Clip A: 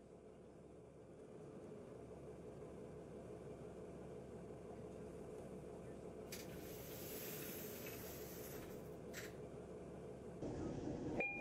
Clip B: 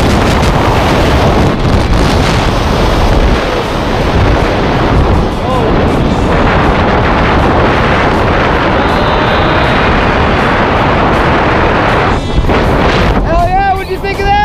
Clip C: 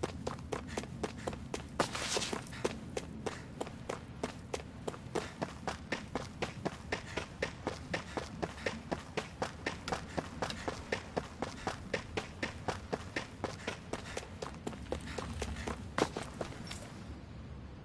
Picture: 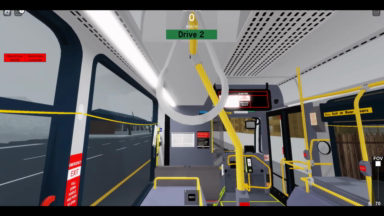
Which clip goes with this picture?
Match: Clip A